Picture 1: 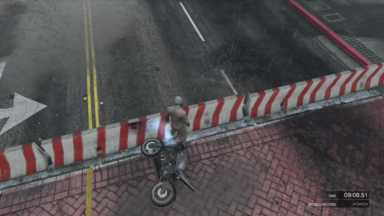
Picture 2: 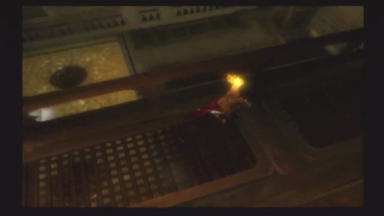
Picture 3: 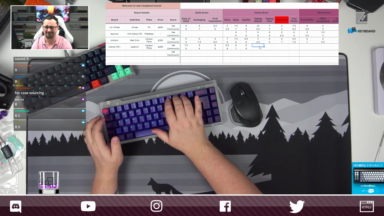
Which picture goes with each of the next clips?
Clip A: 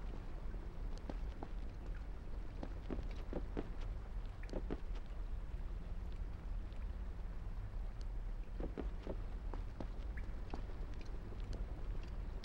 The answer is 2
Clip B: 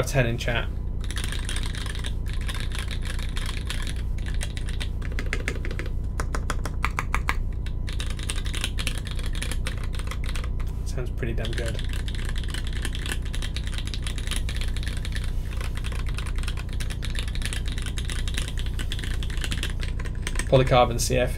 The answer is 3